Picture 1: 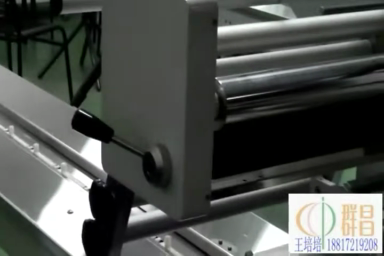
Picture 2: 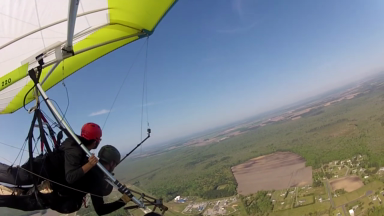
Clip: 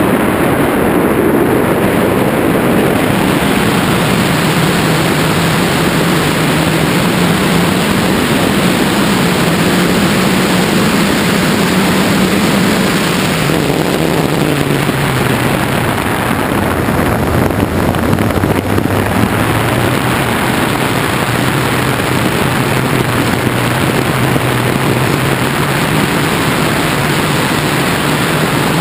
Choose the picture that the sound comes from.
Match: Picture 2